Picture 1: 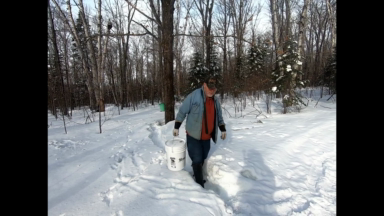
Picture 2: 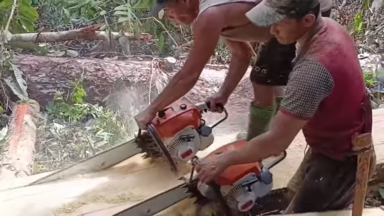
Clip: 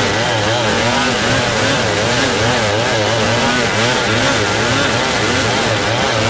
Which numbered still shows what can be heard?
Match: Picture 2